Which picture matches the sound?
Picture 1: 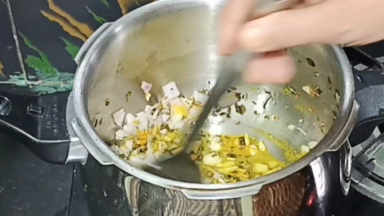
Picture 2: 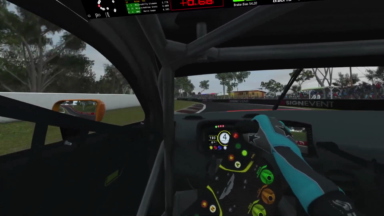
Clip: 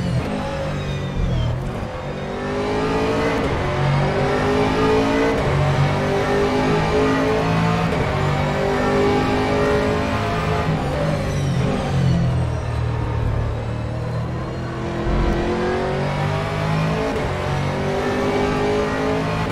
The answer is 2